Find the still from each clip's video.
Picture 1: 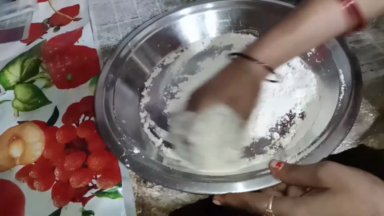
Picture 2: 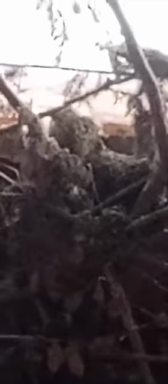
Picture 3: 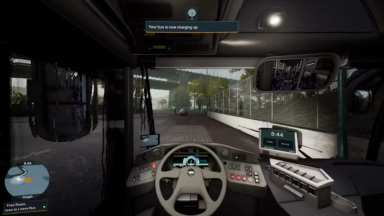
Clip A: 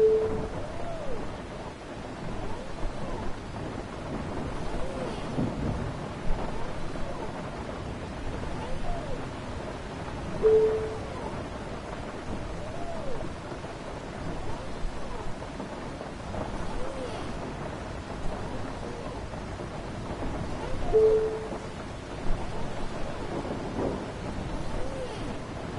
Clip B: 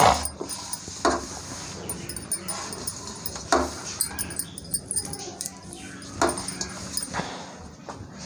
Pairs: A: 3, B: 1